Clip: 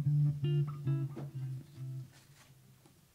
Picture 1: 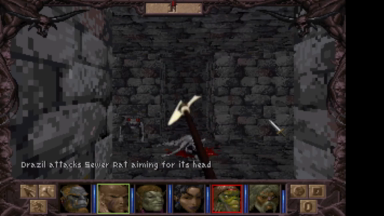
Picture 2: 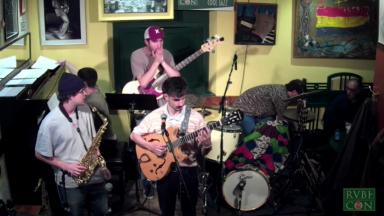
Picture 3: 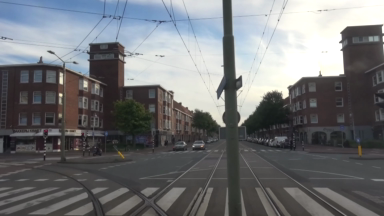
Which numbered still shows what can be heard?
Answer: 2